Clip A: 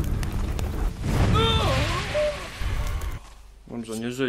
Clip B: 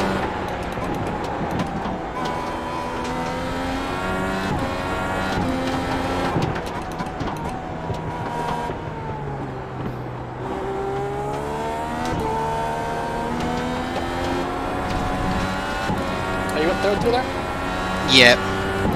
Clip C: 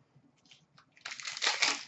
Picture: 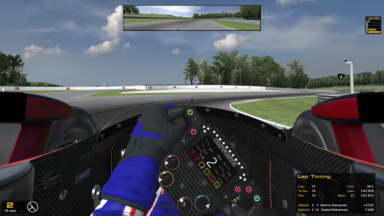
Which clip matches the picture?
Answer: B